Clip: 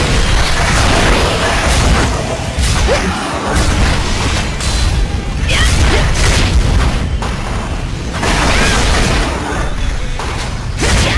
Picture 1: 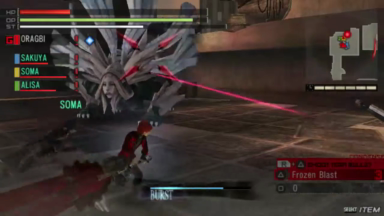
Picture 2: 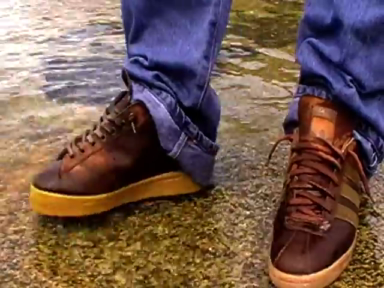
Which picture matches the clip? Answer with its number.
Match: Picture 1